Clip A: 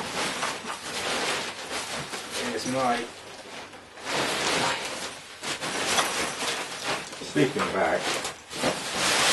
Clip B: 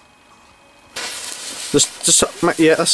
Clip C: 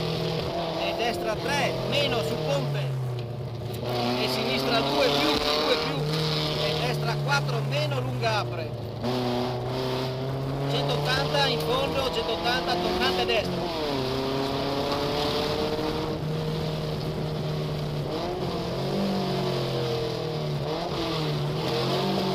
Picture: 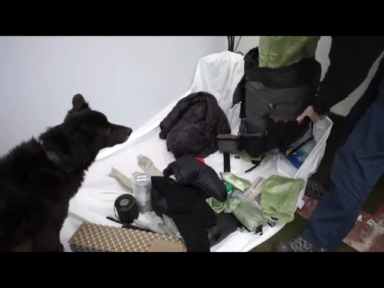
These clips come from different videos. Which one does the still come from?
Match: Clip A